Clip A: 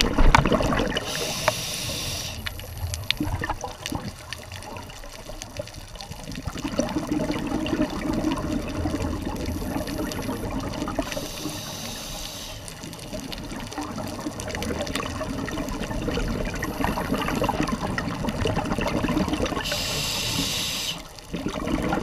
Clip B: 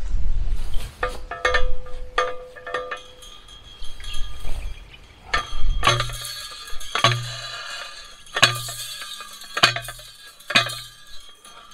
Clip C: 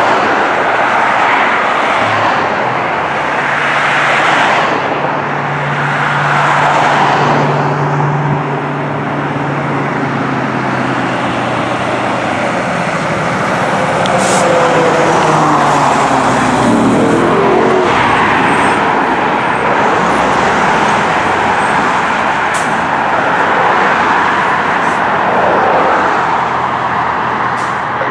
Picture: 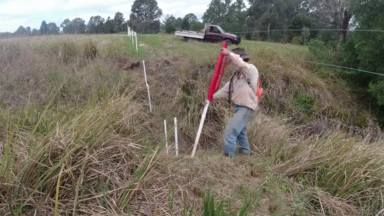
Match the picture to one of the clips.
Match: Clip B